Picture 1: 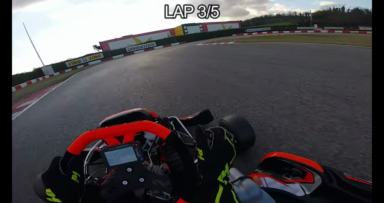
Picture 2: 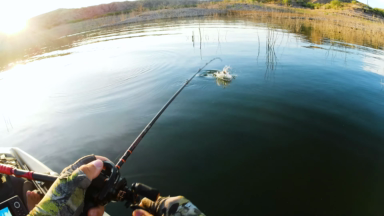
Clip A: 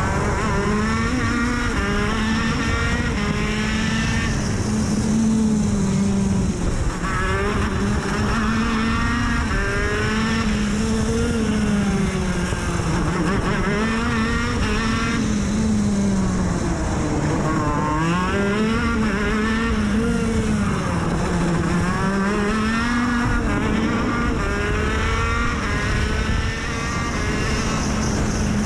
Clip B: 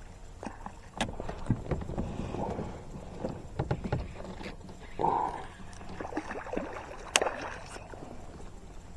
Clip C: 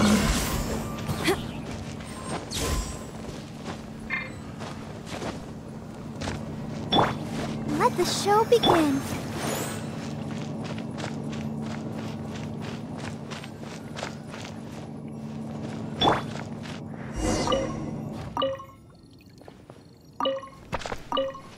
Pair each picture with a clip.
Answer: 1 A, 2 B